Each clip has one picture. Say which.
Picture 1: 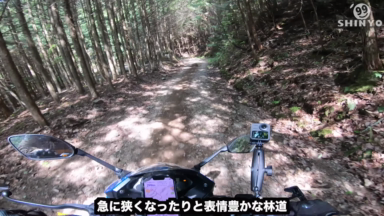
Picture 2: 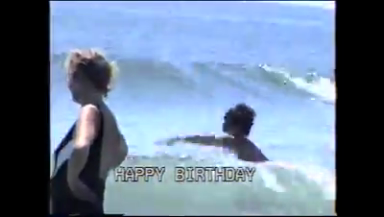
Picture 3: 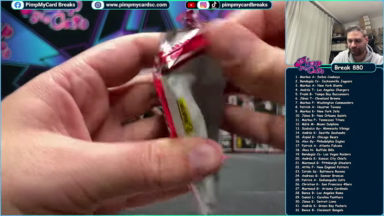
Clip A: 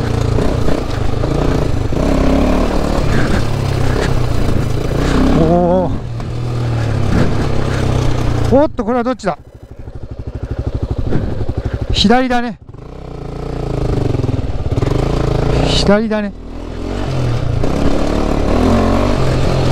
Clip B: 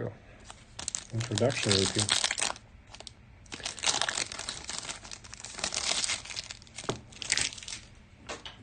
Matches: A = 1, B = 3